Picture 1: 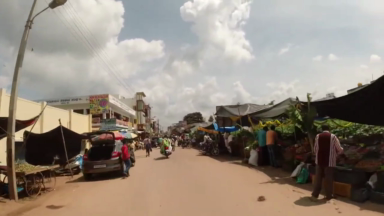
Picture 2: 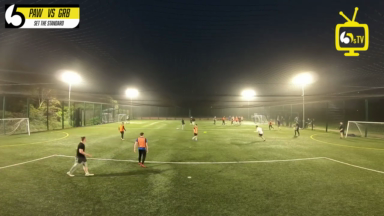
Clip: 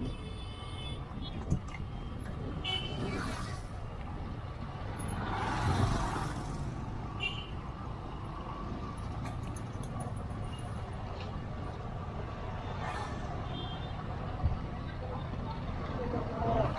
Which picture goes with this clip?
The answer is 1